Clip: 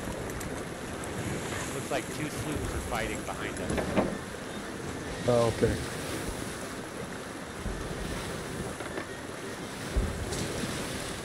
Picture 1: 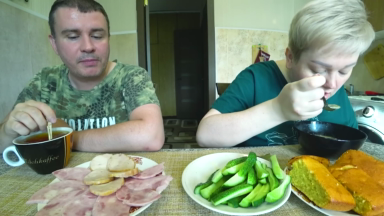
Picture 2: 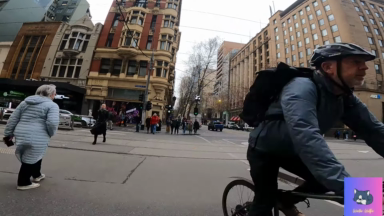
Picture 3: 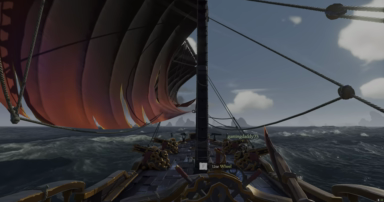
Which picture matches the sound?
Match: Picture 3